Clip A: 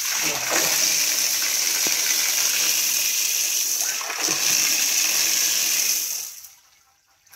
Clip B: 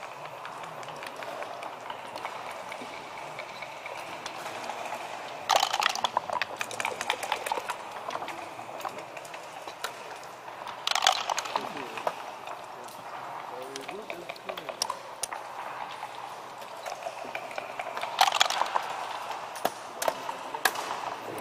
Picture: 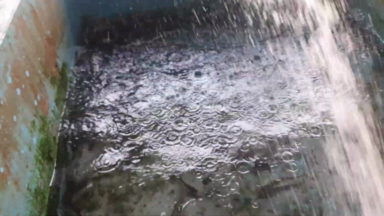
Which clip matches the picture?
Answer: A